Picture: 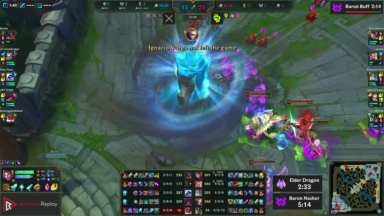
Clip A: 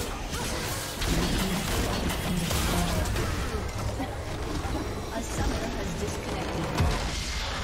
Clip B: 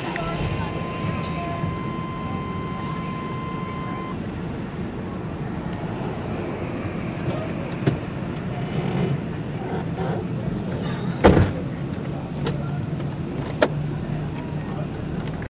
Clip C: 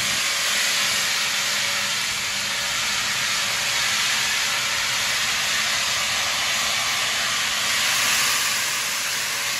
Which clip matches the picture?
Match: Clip A